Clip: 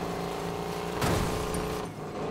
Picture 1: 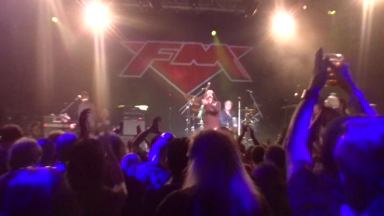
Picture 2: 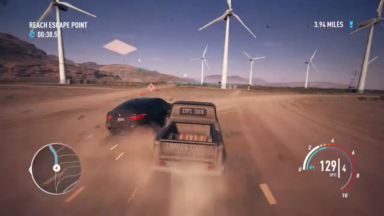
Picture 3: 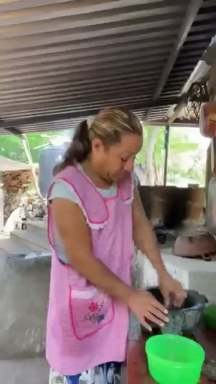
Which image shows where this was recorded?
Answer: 2